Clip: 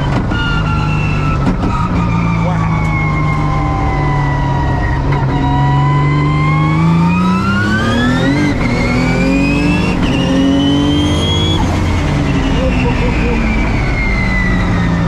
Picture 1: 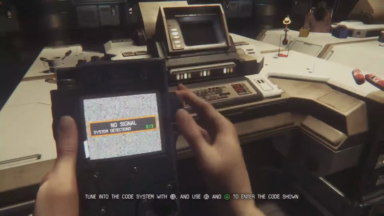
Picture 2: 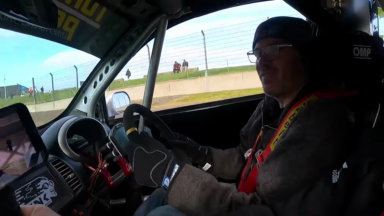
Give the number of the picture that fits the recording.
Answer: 2